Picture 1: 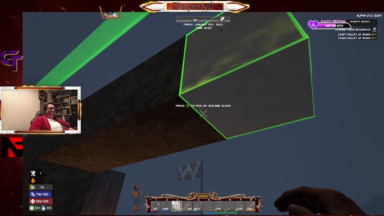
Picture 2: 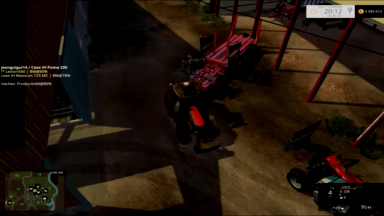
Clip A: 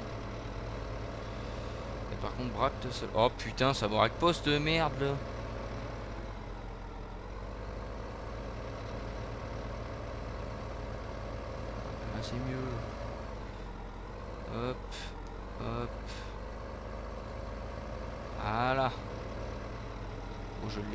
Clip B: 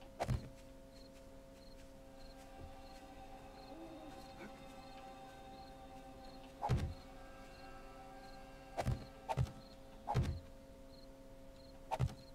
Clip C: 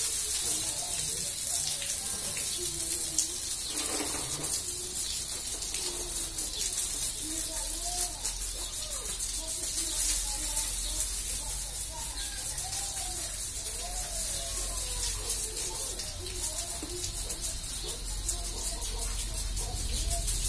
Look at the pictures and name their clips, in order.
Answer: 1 B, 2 A